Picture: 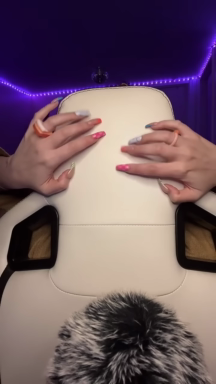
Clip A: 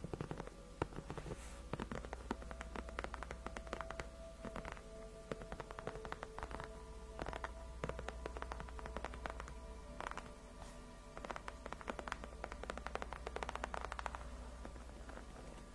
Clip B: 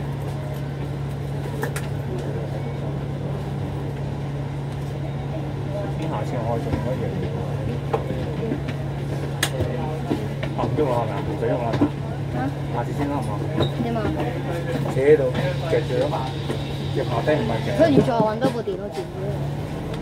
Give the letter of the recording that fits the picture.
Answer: A